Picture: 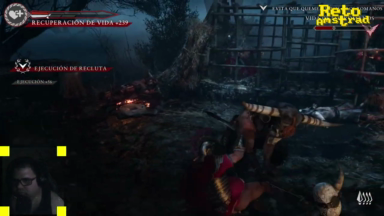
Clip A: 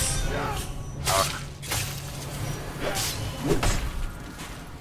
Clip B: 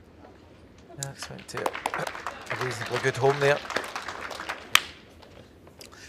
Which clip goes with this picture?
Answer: A